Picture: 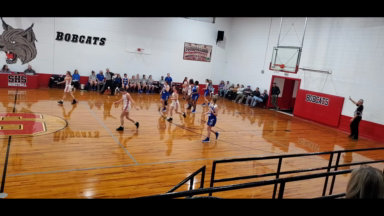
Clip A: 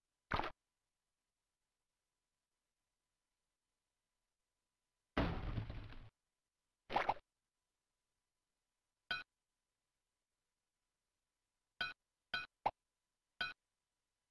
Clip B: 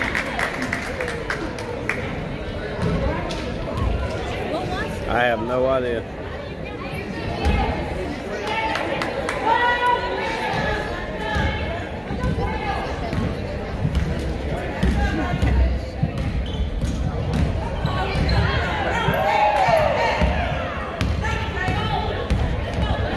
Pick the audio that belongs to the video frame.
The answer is B